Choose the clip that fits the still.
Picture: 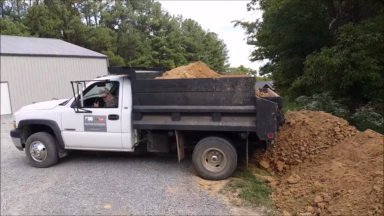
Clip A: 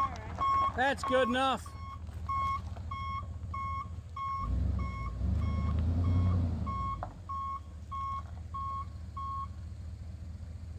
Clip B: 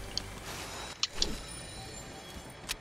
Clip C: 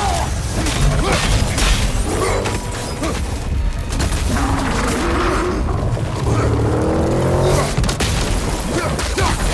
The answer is A